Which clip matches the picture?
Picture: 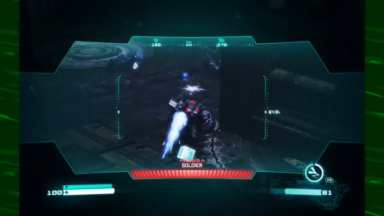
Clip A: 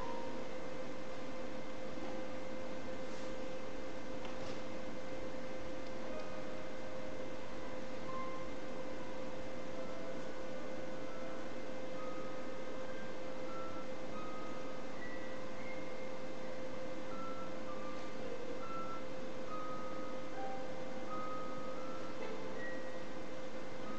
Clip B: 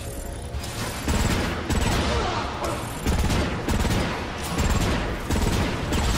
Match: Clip B